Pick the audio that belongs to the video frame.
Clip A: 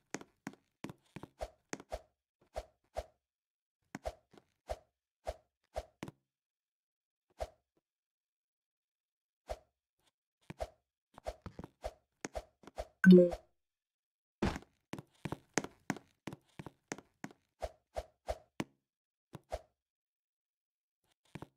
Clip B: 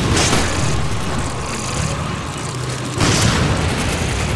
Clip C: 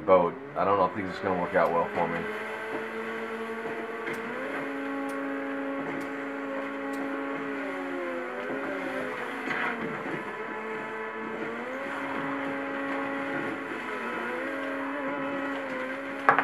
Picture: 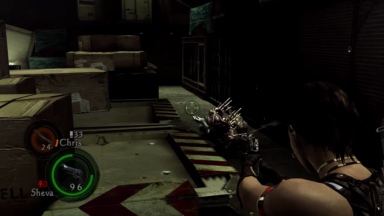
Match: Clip B